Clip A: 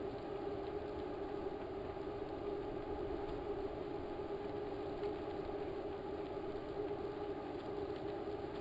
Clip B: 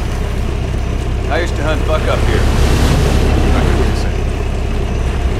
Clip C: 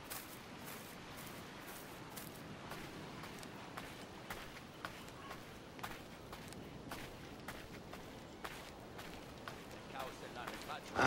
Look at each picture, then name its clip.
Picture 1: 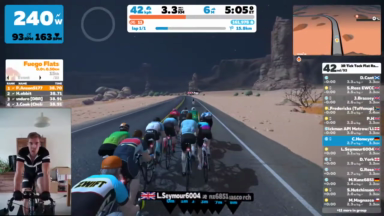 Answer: A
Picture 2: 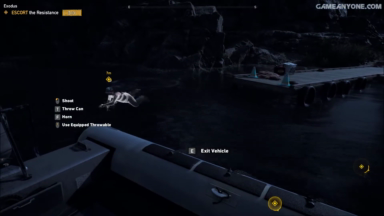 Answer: B